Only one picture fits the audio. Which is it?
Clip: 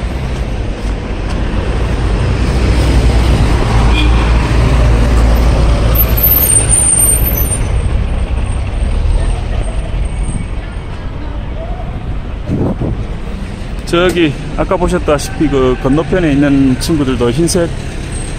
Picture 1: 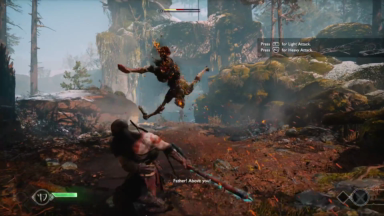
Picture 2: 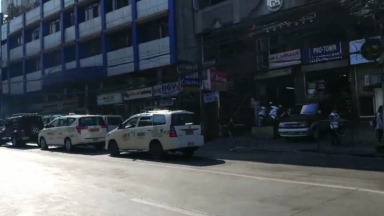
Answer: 2